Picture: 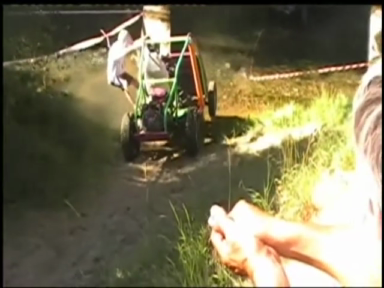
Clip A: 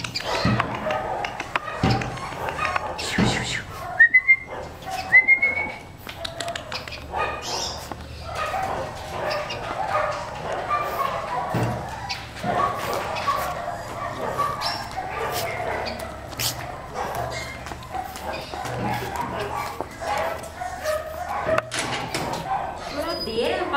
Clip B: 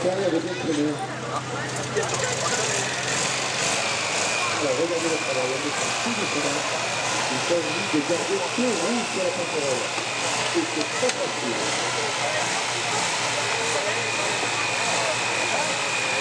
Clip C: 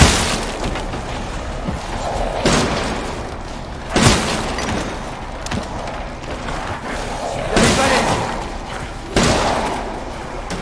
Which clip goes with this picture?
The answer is B